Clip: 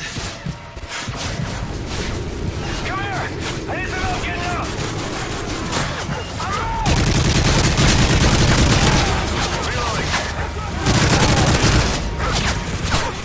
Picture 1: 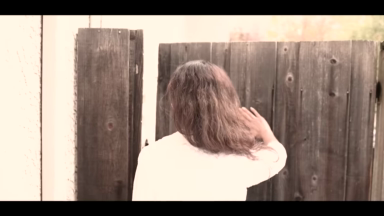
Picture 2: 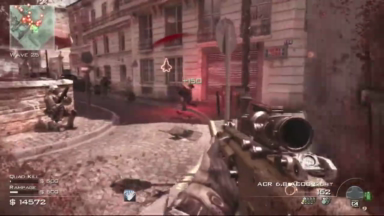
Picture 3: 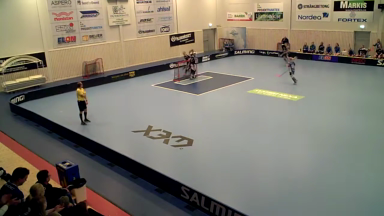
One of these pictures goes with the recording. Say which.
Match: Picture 2